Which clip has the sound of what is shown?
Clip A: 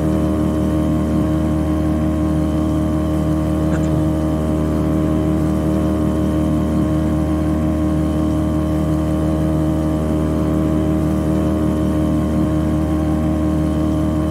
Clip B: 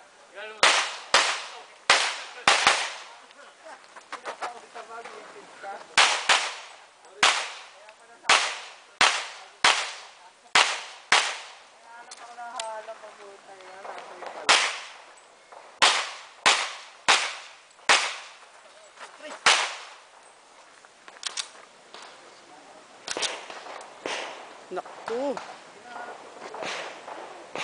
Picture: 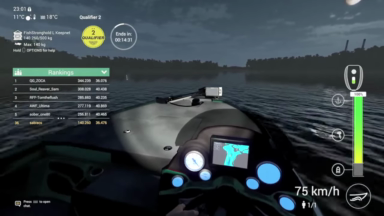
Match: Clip A